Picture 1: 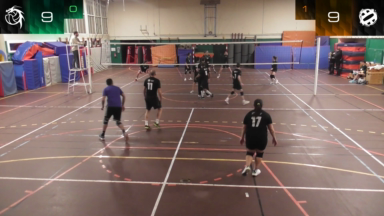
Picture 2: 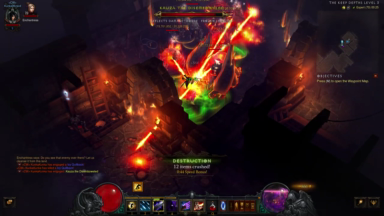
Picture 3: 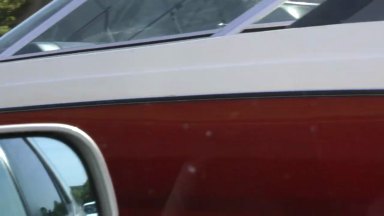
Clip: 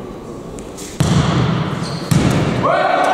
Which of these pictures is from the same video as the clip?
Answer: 1